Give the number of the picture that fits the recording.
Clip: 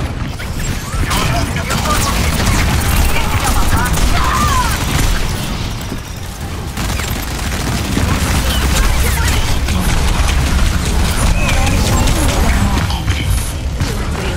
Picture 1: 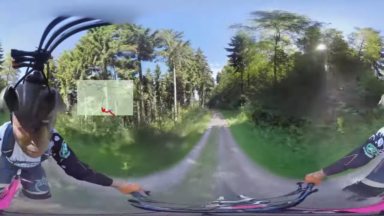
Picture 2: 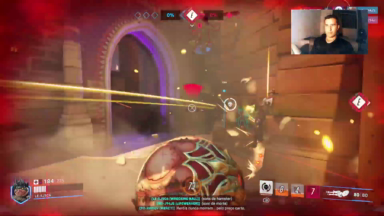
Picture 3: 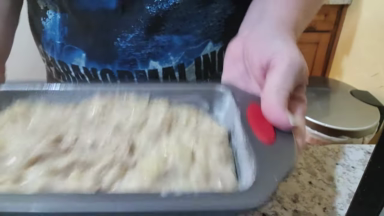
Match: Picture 2